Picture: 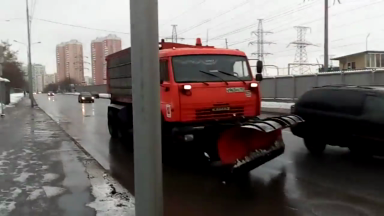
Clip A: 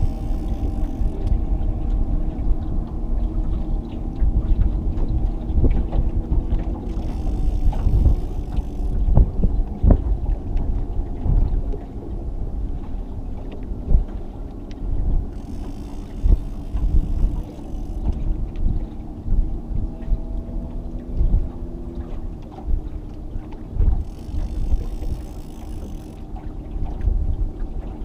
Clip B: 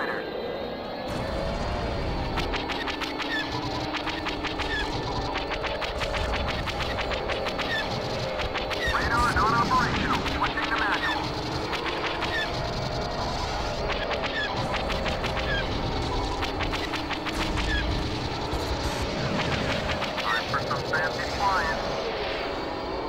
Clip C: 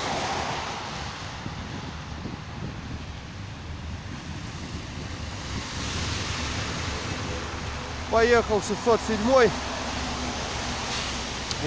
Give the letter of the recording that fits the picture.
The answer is C